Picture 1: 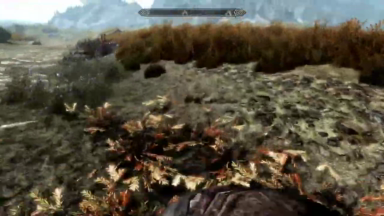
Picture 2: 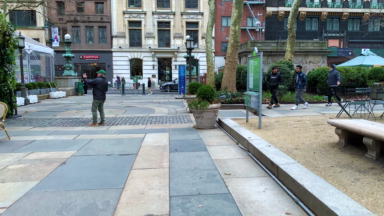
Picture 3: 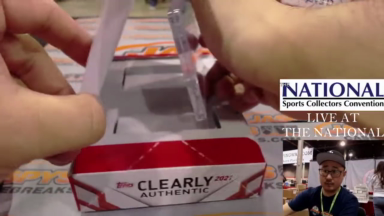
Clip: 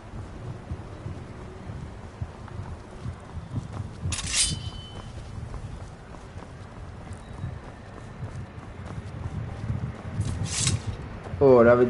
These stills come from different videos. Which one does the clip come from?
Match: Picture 1